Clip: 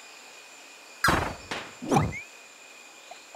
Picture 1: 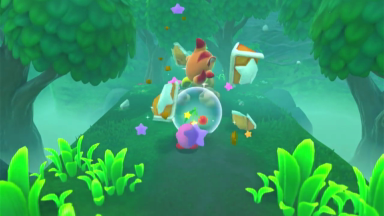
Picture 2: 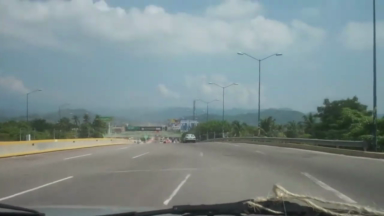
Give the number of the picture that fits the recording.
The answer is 1